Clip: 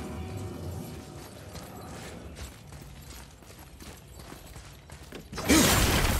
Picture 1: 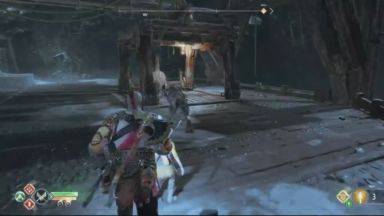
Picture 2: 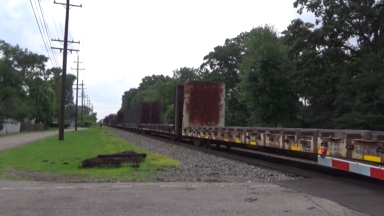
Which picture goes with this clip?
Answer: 1